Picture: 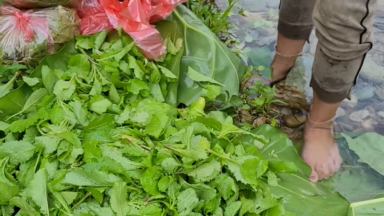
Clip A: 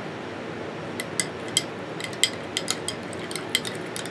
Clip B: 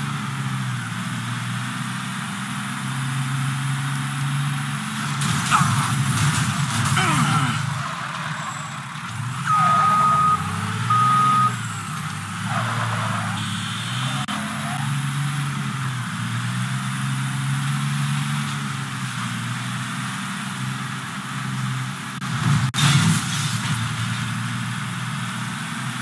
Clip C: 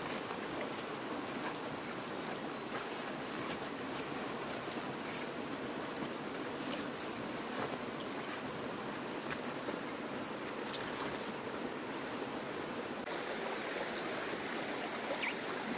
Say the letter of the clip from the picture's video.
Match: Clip C